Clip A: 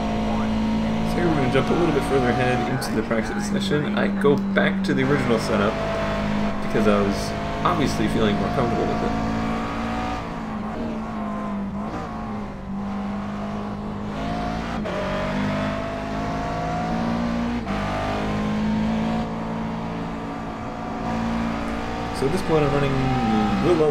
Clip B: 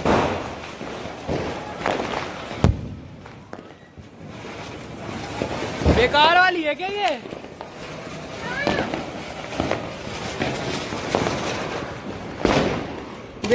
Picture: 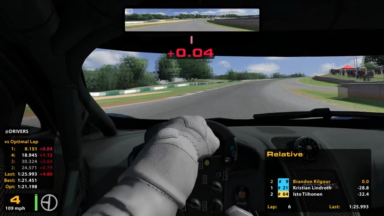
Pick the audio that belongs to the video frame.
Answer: A